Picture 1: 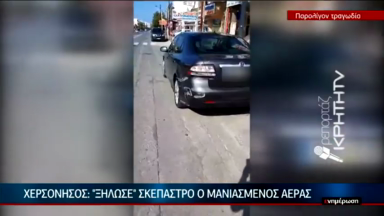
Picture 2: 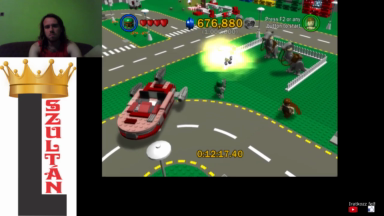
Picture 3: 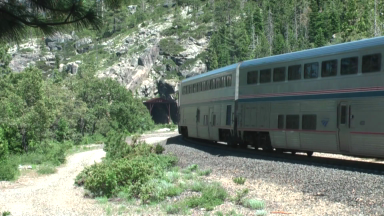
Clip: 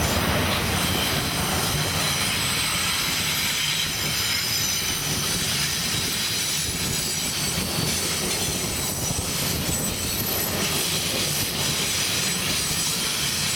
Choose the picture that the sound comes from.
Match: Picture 3